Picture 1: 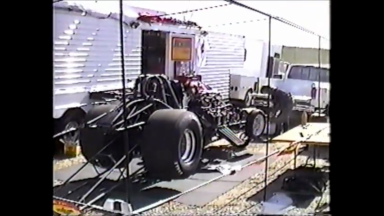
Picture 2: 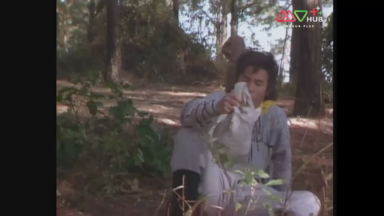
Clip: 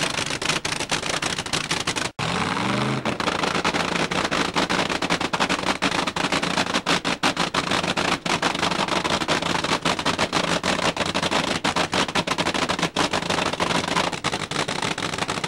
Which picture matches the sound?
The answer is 1